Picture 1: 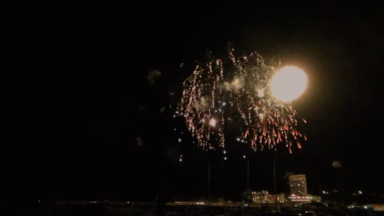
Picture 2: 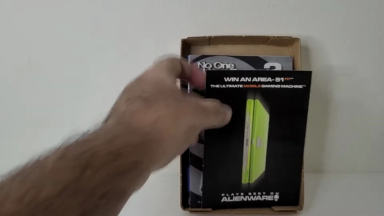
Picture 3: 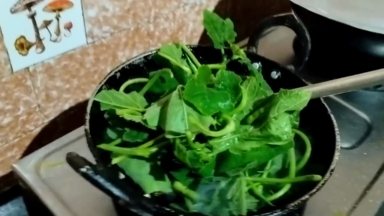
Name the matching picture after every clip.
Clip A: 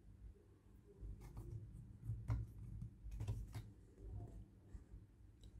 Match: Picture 2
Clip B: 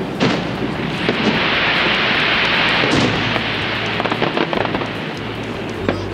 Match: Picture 1